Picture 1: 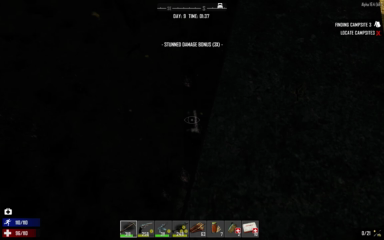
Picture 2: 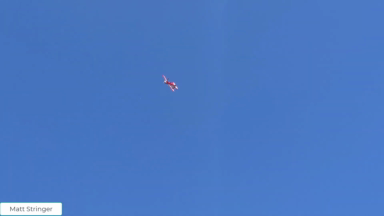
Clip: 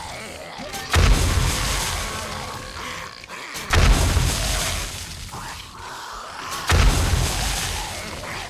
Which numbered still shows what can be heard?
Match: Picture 1